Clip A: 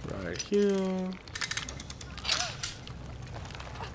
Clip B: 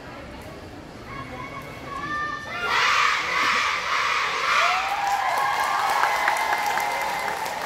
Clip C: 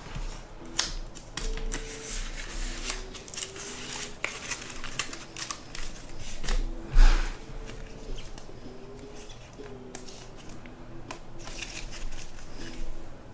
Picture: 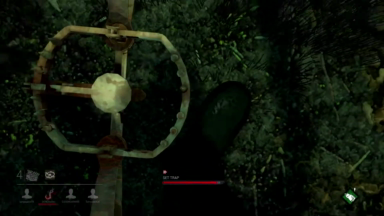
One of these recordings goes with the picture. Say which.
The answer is A